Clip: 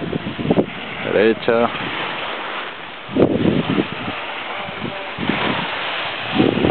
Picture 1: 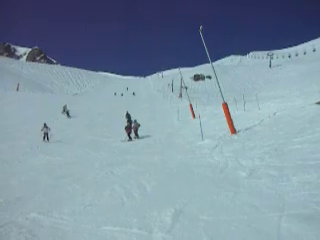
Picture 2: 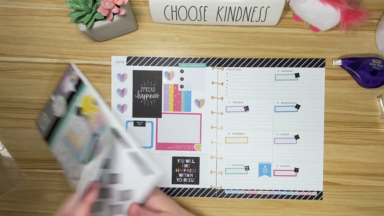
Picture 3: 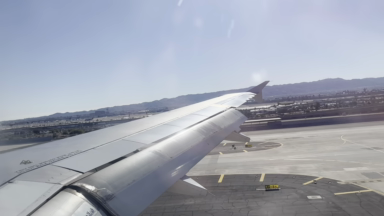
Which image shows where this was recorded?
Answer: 1